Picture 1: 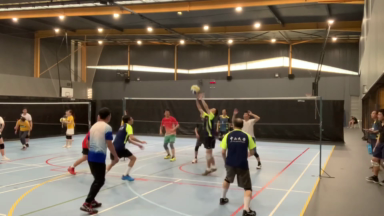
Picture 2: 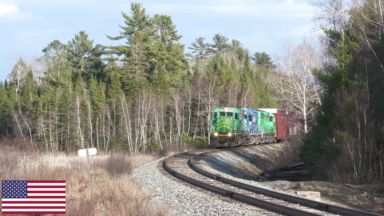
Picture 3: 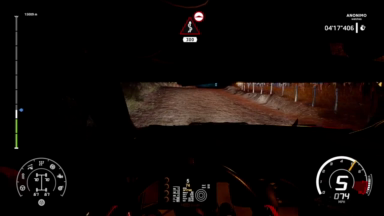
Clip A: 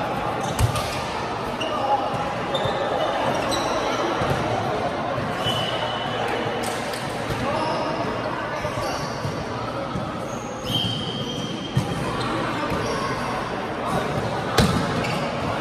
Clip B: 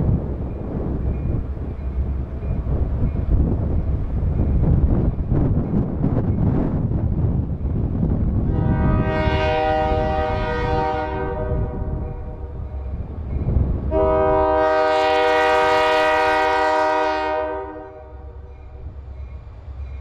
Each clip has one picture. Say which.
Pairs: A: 1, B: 2